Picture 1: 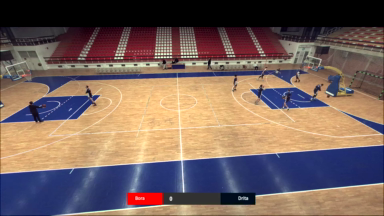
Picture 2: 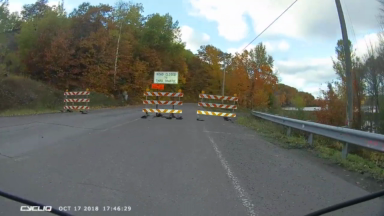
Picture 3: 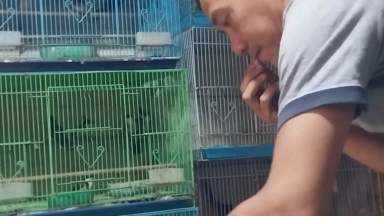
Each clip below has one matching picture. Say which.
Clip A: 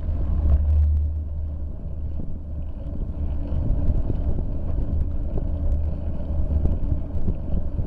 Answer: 2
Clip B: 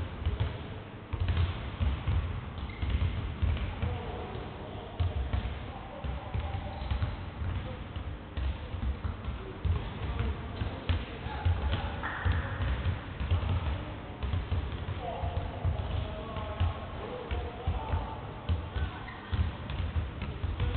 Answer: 1